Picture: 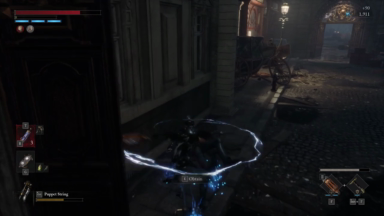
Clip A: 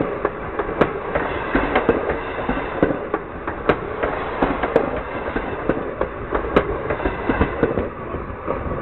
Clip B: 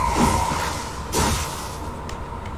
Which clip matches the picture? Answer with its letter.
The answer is B